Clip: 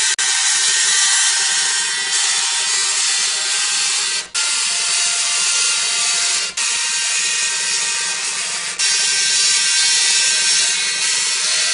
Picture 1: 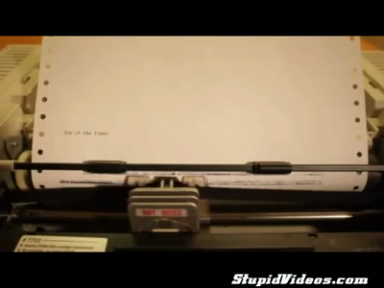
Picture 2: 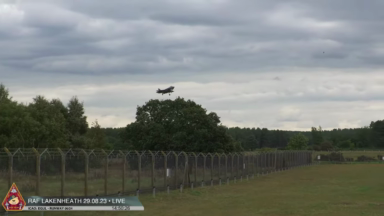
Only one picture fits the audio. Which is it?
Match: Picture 1